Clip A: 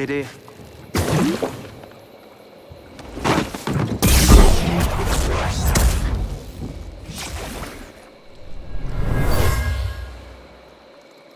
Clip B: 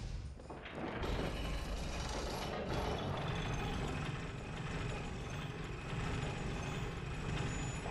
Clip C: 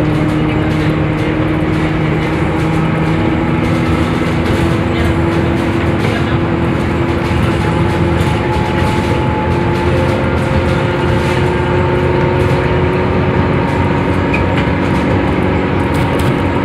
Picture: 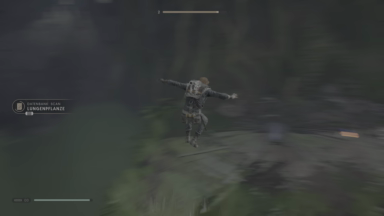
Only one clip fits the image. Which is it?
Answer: A